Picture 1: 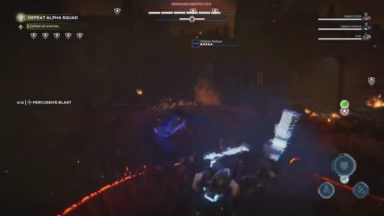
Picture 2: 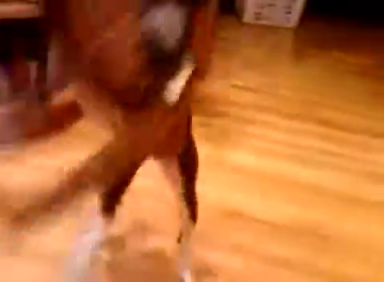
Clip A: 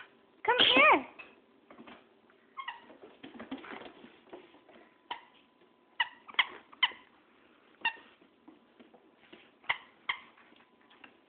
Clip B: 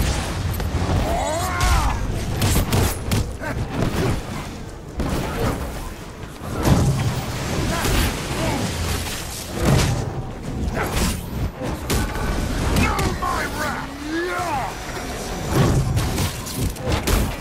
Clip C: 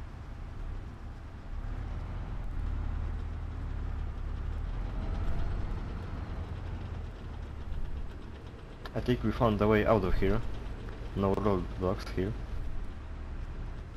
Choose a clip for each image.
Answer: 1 B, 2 A